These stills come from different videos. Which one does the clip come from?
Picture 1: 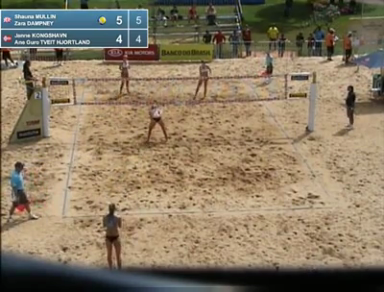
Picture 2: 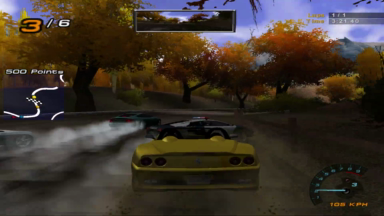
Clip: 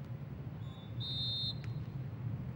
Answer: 1